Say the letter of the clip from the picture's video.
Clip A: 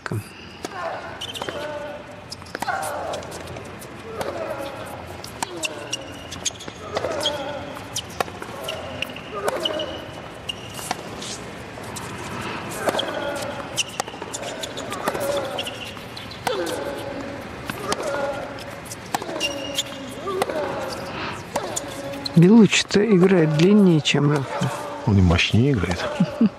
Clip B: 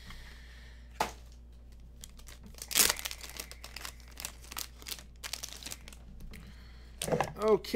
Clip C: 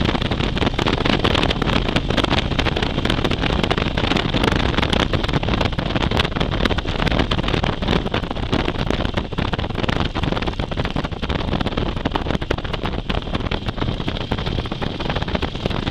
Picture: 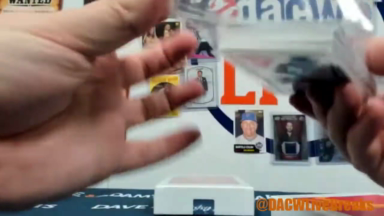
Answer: B